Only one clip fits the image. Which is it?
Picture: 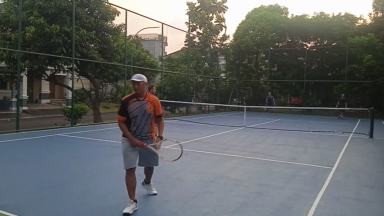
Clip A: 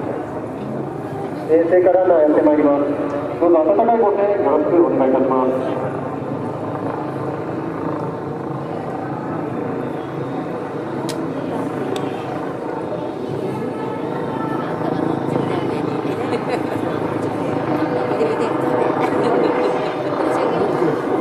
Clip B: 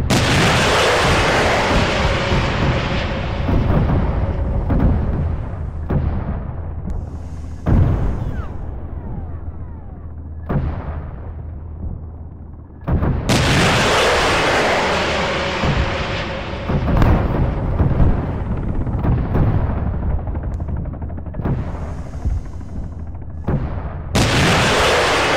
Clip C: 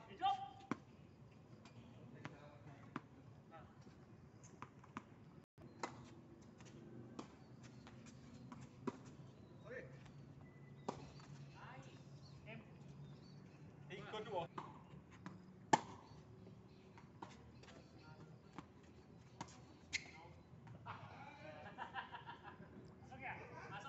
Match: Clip C